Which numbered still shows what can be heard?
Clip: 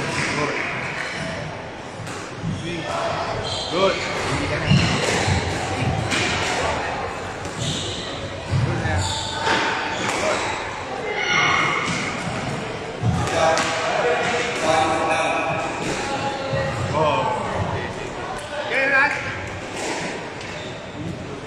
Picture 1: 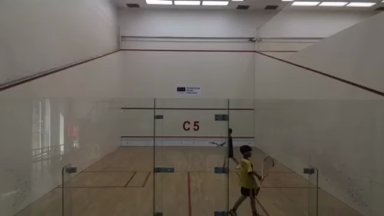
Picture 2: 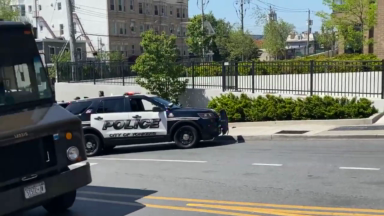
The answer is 1